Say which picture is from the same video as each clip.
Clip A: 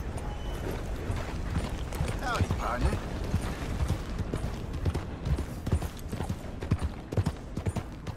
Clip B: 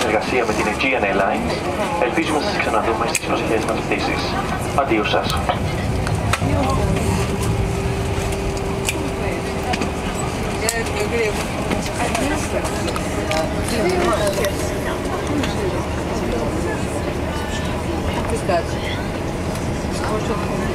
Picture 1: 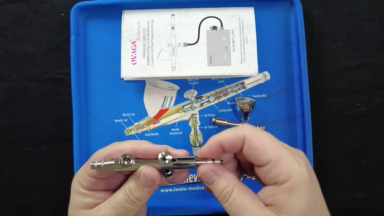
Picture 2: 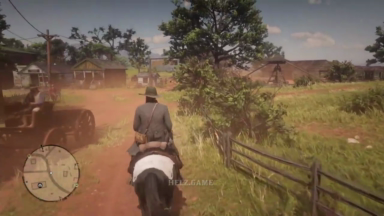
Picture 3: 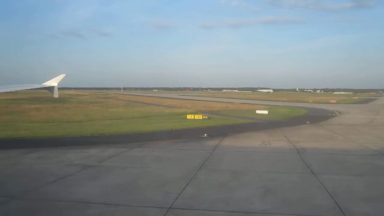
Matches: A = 2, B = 3